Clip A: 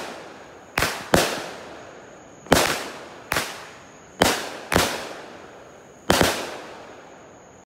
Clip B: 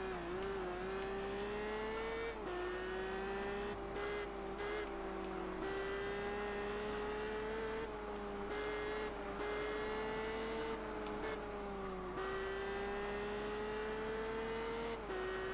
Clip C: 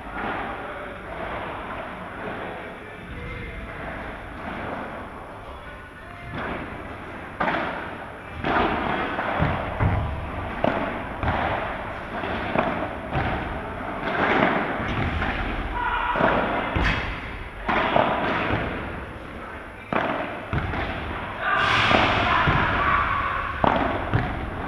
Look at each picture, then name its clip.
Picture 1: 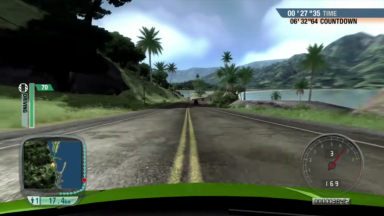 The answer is B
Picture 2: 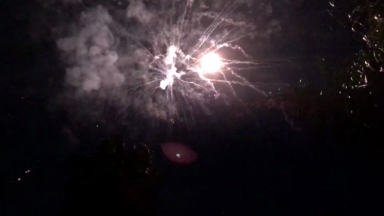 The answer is A